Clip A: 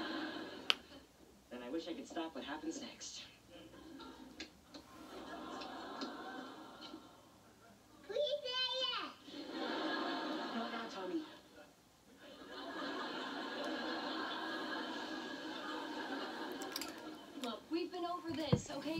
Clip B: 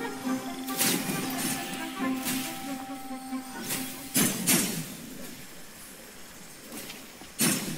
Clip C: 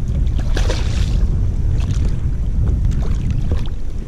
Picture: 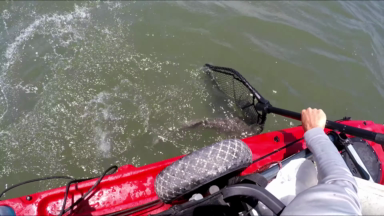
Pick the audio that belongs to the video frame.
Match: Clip C